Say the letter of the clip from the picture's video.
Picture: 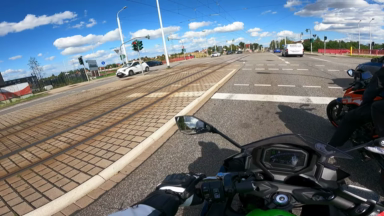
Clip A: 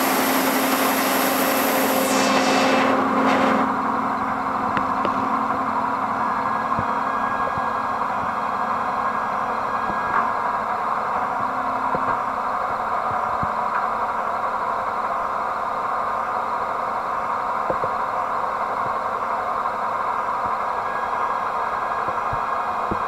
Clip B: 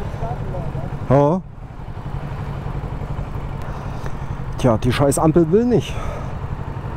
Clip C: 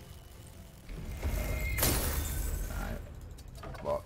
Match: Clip B